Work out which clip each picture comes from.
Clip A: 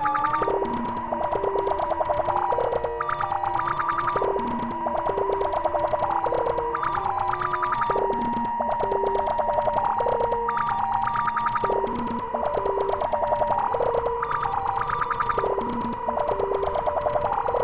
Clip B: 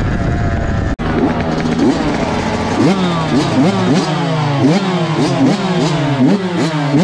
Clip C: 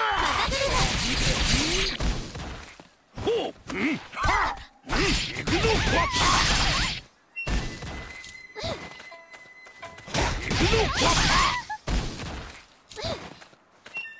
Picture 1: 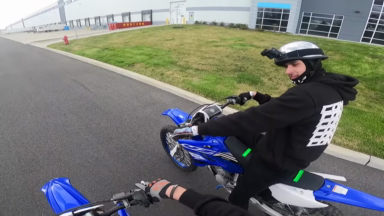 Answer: B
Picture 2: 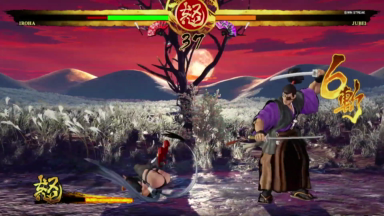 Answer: C